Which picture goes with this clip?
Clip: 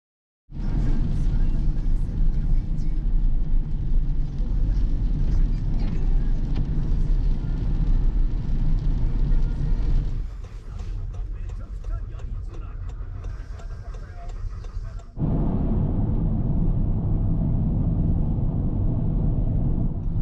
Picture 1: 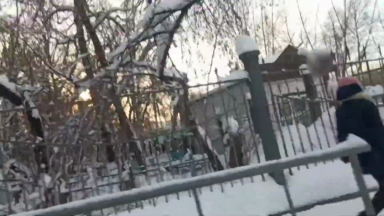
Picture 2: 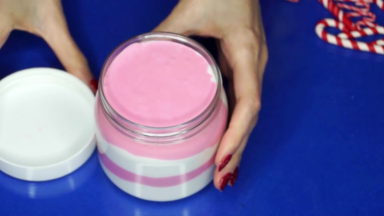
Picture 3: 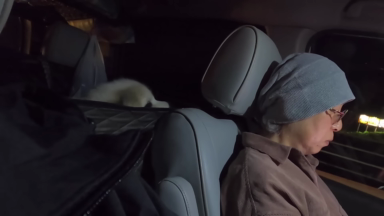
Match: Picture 3